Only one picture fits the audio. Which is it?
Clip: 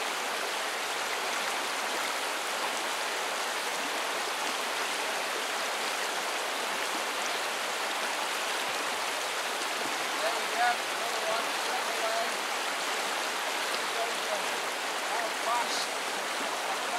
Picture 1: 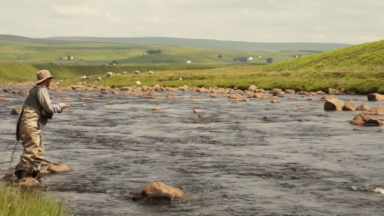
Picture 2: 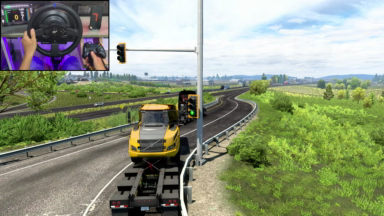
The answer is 1